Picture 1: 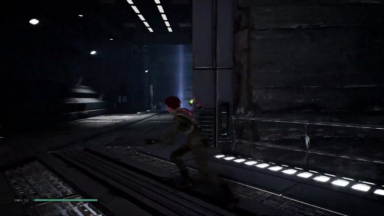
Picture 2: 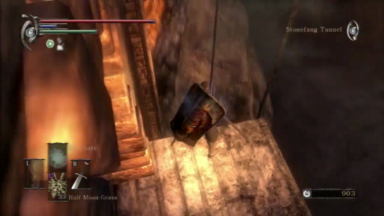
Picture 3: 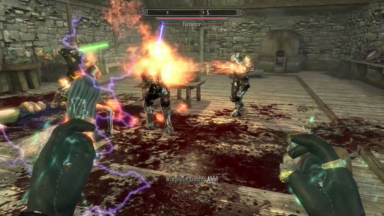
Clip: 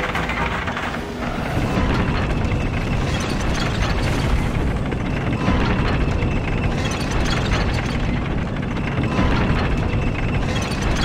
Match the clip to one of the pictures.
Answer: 2